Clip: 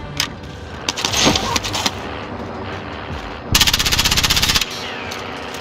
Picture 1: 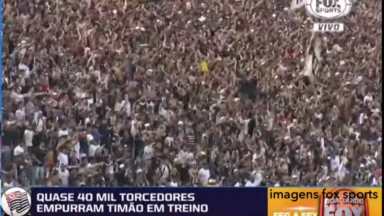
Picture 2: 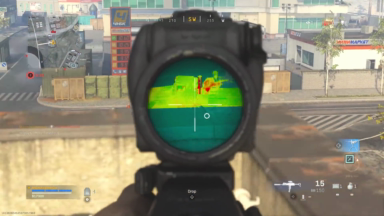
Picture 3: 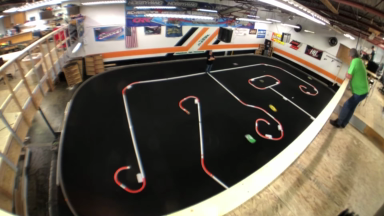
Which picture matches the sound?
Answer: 2